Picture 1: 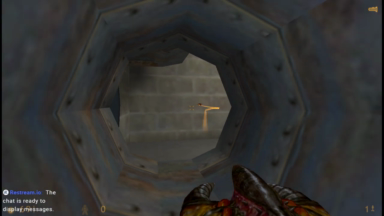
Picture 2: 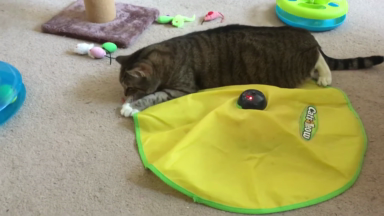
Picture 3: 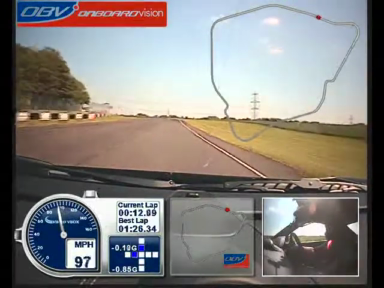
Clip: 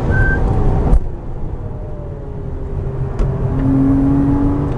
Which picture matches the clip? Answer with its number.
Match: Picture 3